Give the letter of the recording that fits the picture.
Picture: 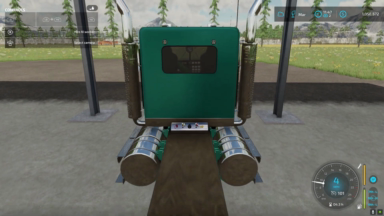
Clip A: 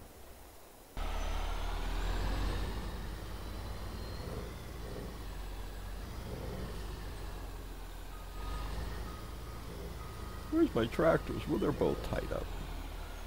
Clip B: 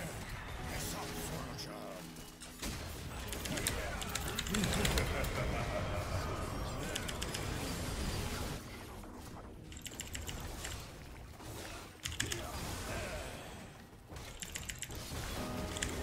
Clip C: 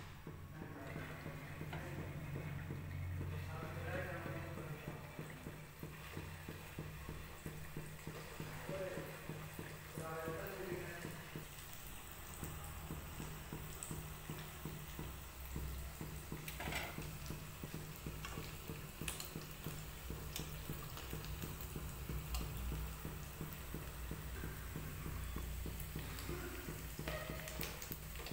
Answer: A